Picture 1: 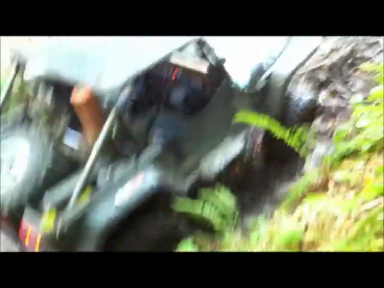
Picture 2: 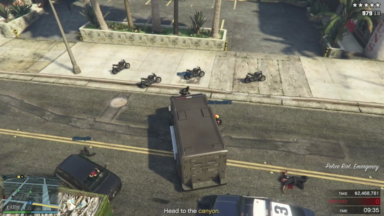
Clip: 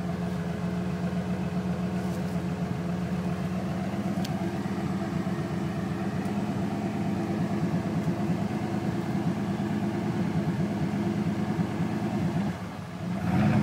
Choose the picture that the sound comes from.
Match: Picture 1